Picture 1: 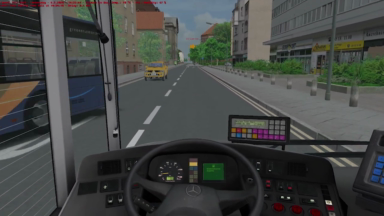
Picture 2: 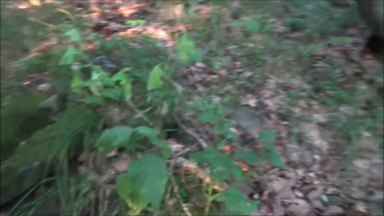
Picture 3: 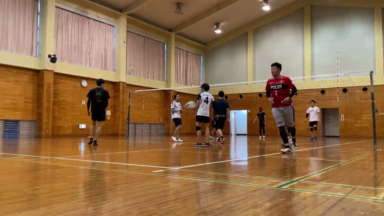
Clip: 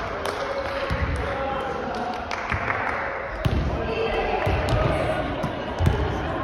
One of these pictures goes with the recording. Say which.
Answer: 3